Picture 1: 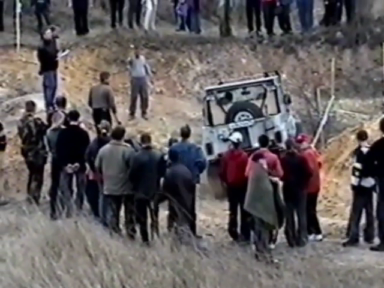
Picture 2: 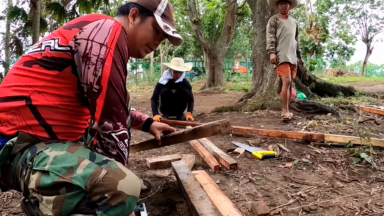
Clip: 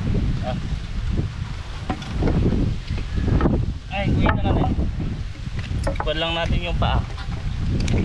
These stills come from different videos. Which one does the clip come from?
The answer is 2